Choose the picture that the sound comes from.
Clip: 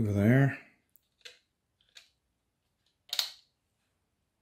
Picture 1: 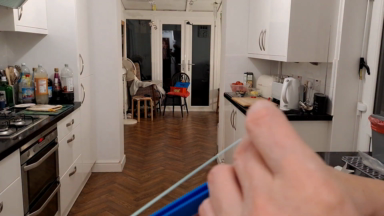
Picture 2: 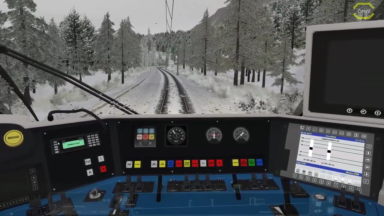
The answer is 1